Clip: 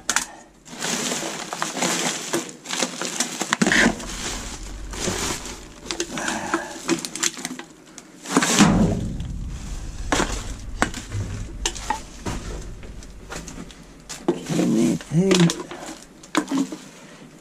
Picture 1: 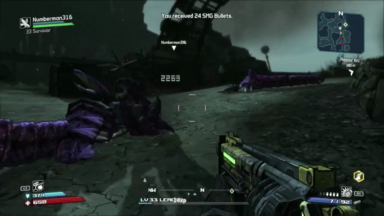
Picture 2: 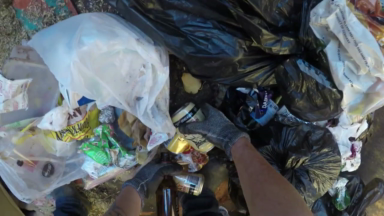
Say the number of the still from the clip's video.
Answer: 2